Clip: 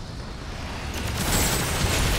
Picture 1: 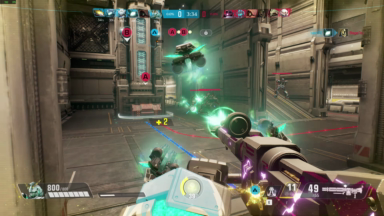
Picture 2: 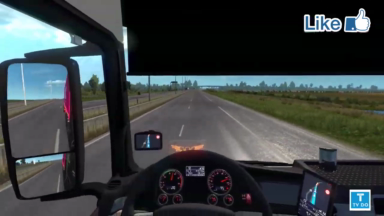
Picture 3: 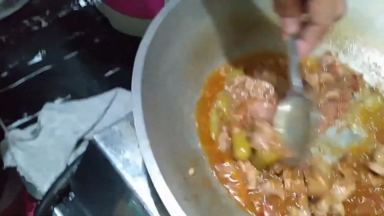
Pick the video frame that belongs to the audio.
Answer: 1